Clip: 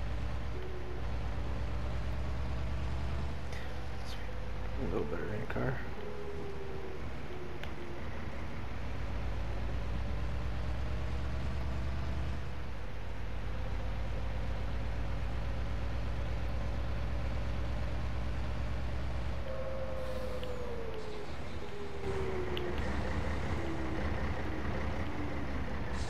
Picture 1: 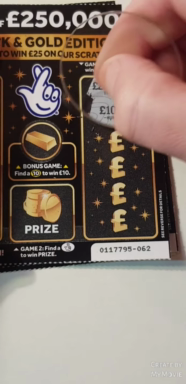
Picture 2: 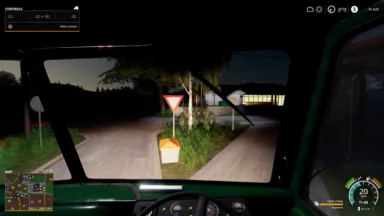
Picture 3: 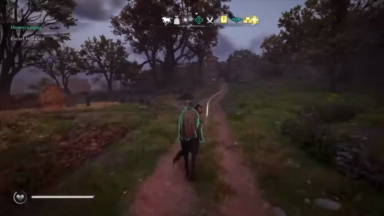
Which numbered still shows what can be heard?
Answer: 2